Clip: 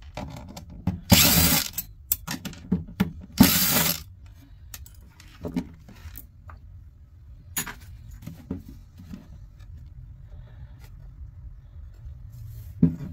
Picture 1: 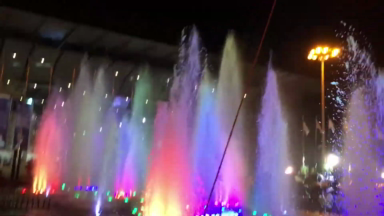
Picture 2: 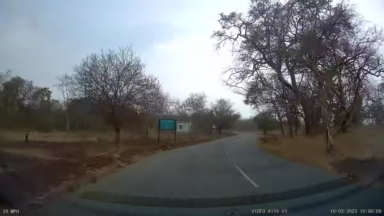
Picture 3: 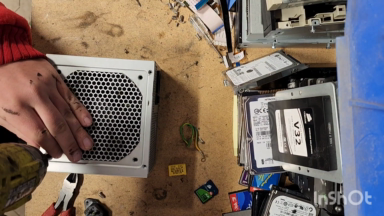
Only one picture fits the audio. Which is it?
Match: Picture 3